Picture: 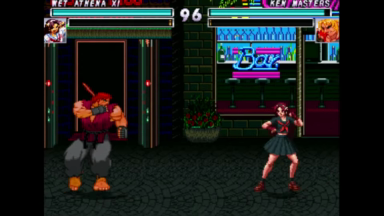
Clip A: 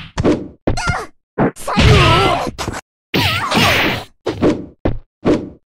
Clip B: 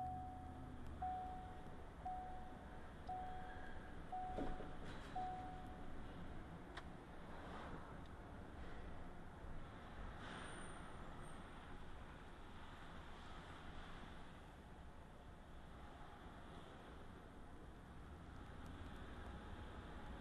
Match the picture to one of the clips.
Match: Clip A